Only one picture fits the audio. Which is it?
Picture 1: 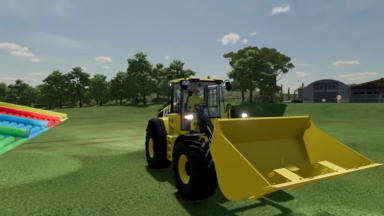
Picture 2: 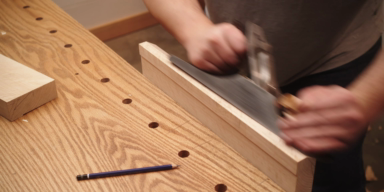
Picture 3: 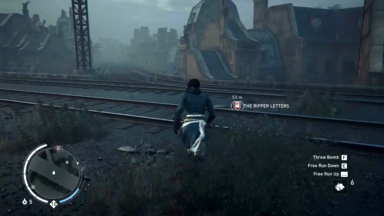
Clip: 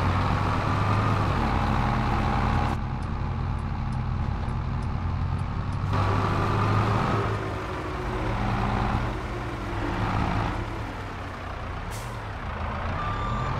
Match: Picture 1